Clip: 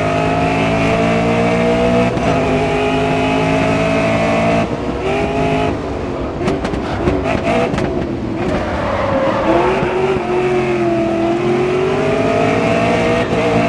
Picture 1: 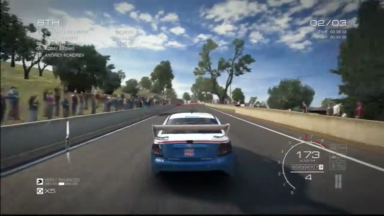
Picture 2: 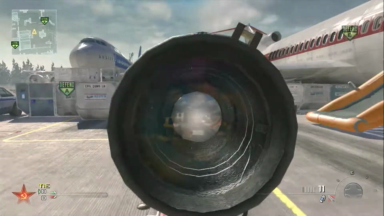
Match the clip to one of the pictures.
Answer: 1